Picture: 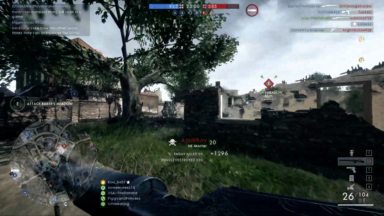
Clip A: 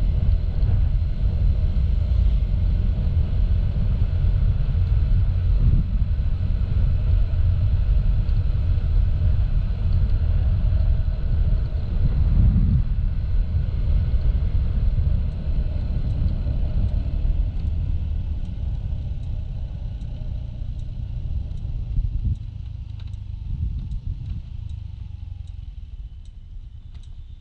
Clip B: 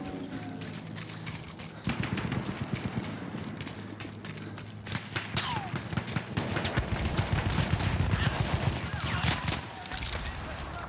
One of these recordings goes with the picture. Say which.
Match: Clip B